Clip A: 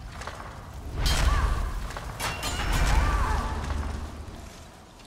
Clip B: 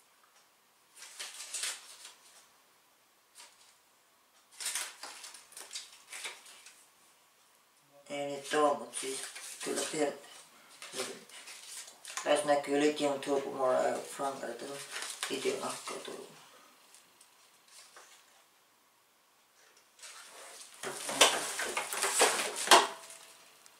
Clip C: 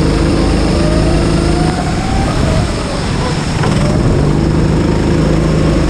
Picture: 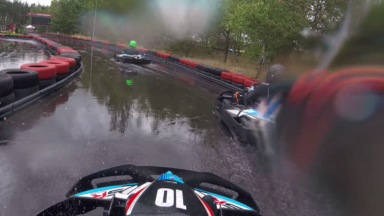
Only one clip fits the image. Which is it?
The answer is C